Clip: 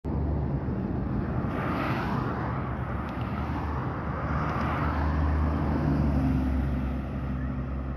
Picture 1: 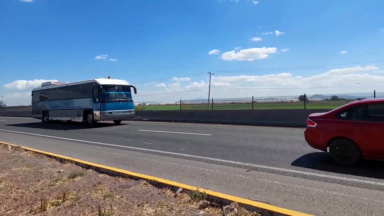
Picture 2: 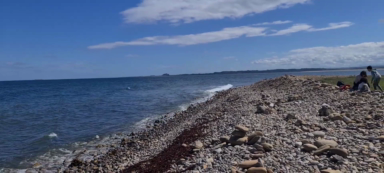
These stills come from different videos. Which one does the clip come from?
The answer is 1